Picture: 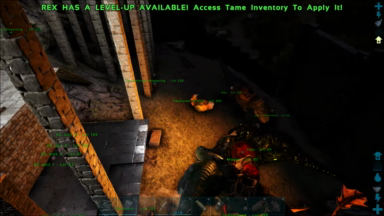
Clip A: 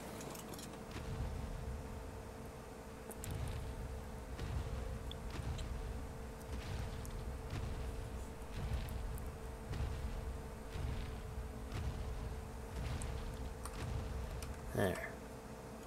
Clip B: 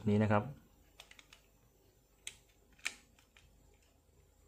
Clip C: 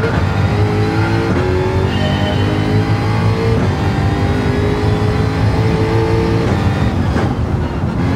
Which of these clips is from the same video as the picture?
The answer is A